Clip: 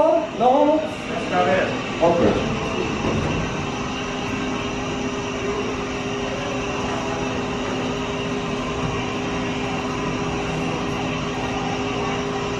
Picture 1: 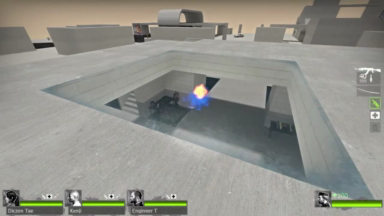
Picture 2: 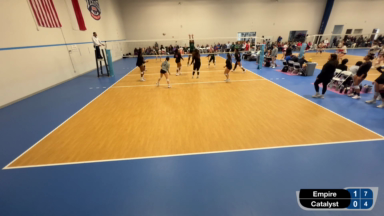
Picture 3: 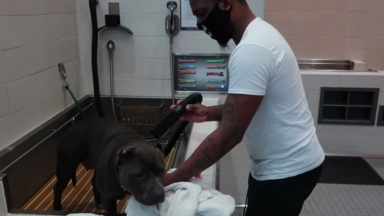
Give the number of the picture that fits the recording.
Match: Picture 3